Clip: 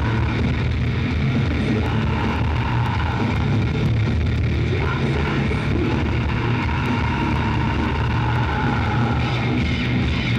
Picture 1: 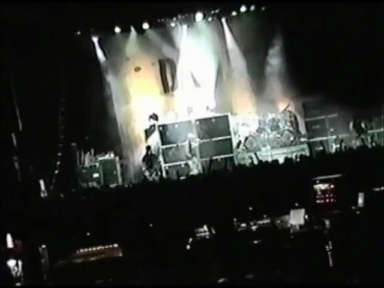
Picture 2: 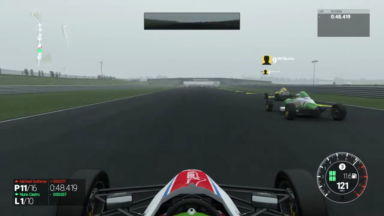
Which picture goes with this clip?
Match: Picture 1